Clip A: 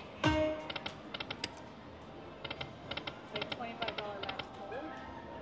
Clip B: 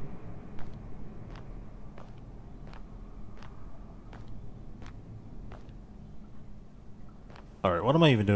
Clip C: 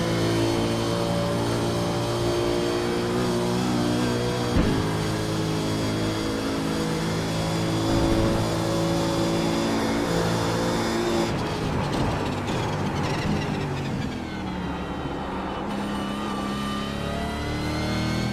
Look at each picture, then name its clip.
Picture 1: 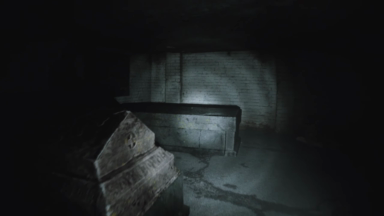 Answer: B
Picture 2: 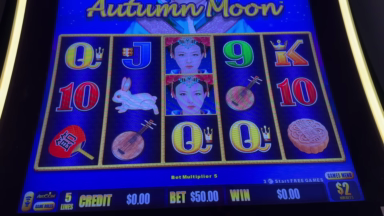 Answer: A